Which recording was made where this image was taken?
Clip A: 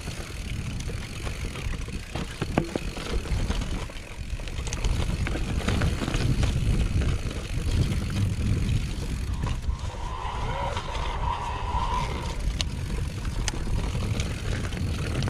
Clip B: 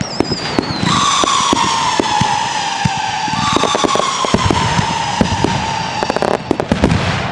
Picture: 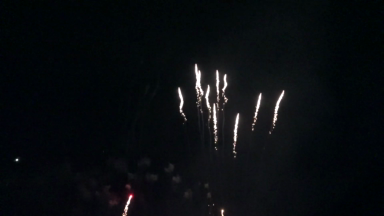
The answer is B